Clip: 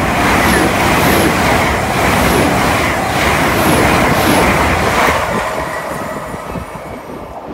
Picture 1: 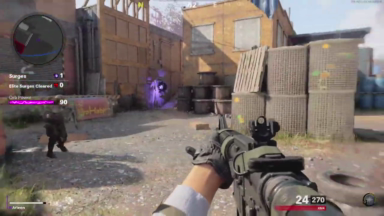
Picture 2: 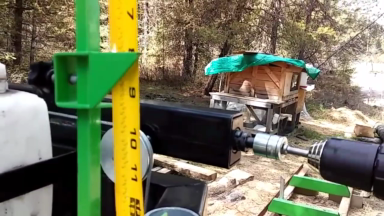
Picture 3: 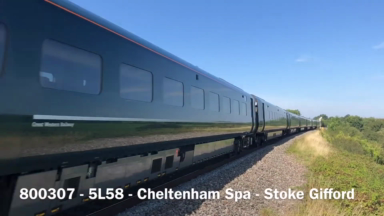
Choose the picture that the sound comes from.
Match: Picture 3